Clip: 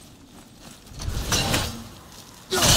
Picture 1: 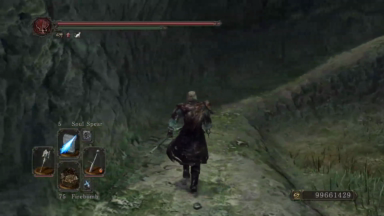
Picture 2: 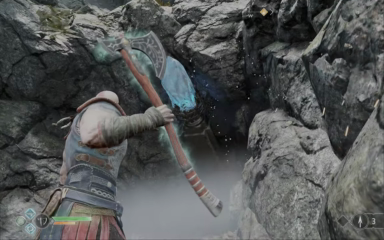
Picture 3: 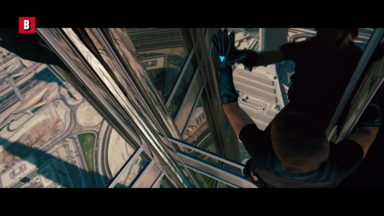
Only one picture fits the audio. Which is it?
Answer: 2